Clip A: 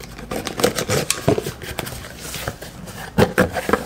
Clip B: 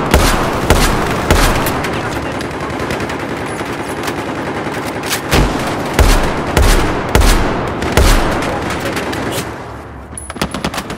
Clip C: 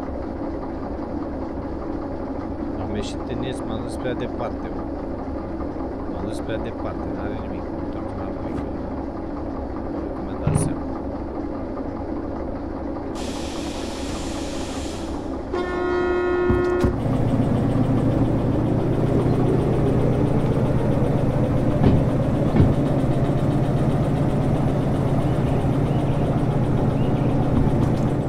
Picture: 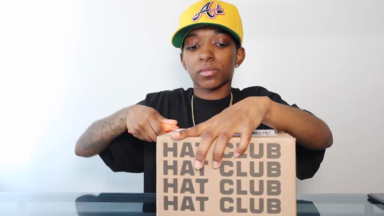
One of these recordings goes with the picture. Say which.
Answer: A